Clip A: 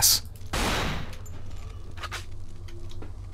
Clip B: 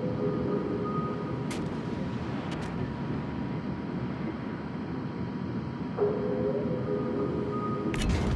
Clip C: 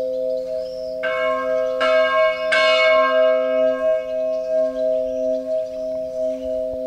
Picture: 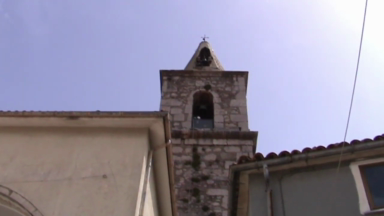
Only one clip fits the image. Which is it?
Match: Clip C